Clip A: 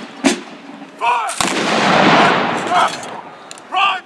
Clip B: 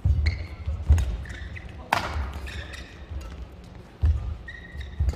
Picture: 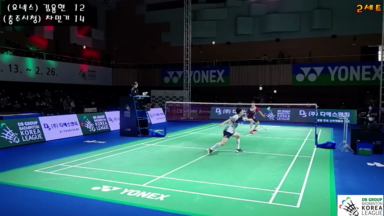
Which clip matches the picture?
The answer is B